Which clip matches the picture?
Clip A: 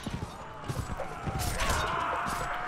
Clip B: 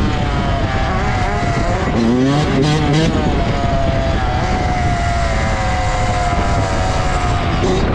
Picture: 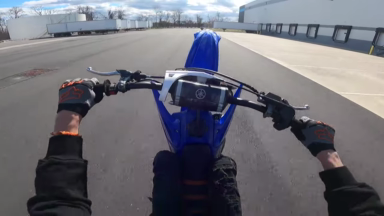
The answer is B